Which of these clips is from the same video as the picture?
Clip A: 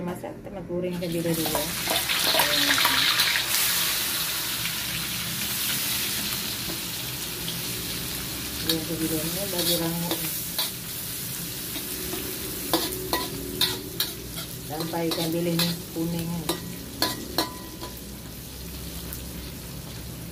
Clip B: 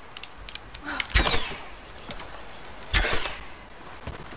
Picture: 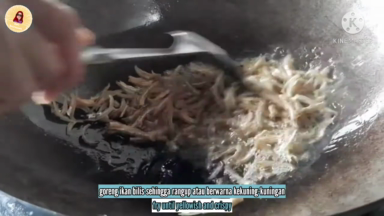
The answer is A